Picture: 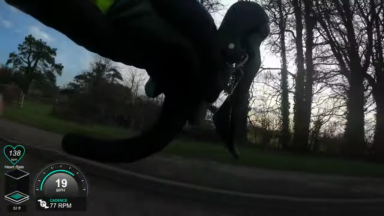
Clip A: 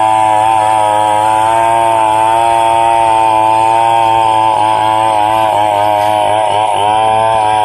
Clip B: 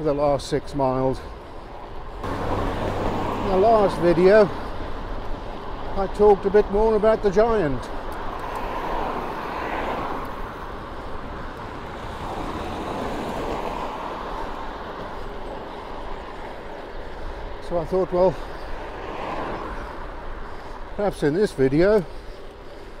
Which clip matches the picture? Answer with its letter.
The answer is B